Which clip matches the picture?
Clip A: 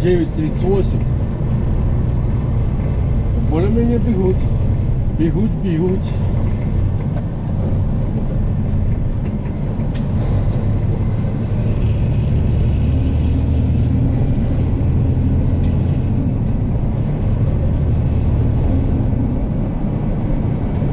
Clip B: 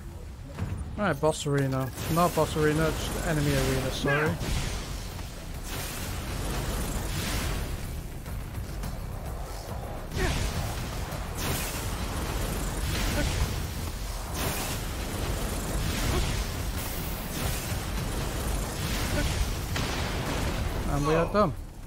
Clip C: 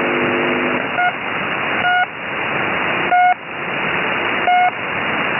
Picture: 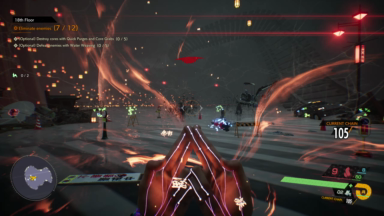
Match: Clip B